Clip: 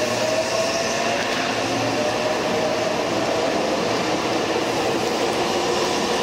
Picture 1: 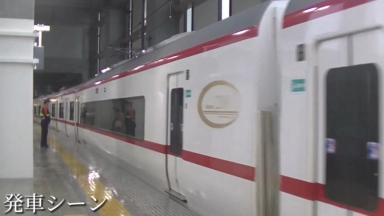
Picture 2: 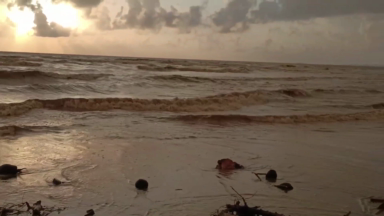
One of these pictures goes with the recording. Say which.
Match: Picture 1